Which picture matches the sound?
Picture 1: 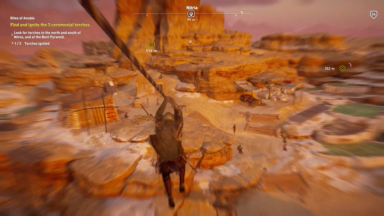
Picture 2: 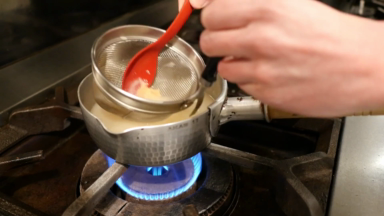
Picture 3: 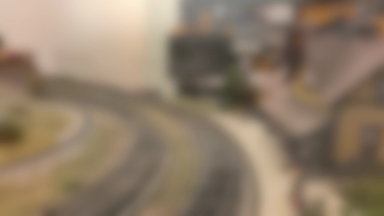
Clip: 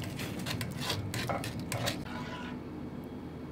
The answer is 2